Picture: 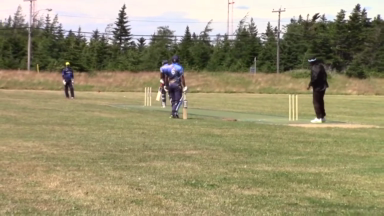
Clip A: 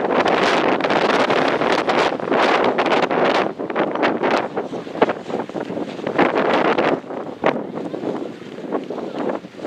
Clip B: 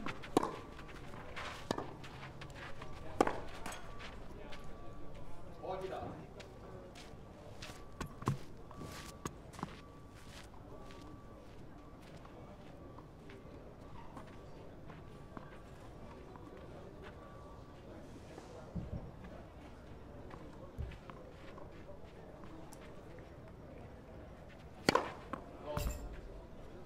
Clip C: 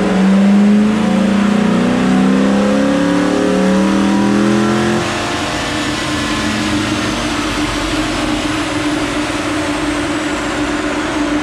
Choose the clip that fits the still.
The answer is A